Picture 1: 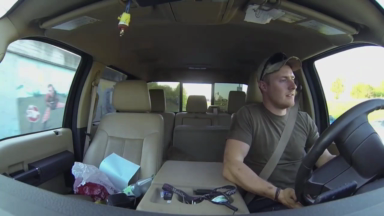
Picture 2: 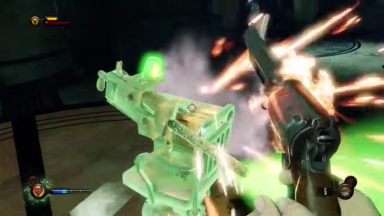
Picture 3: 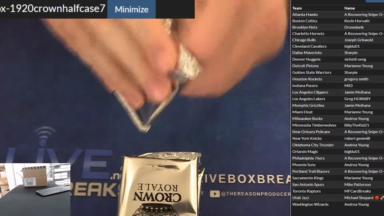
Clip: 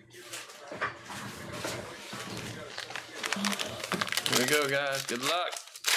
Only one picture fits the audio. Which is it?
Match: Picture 3